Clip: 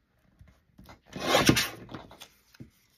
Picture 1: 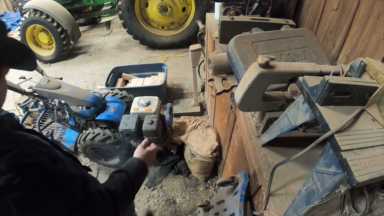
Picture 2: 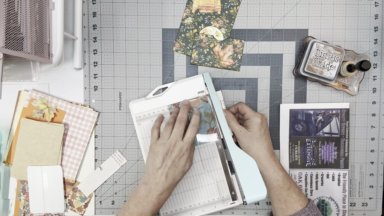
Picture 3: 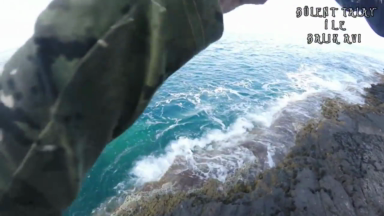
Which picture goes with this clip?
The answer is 2